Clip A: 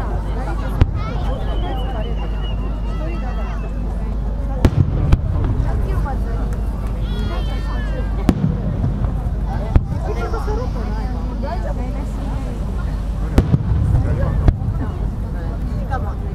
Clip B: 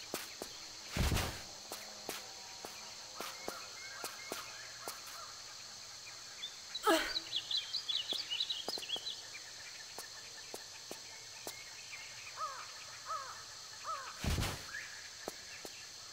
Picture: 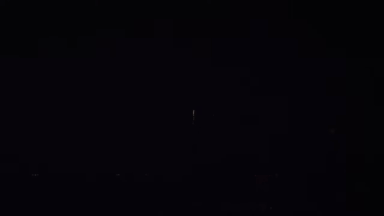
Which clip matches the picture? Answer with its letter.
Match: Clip A